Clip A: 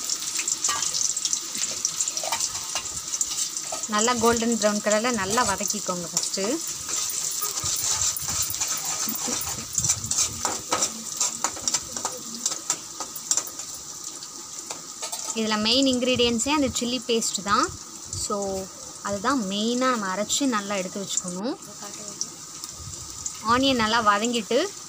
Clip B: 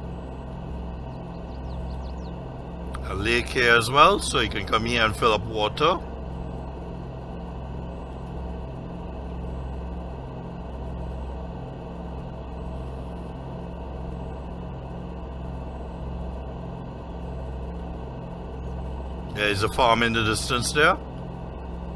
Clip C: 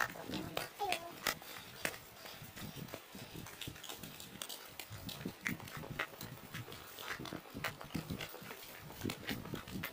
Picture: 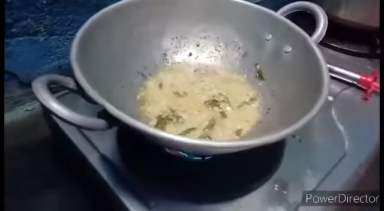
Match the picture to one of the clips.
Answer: A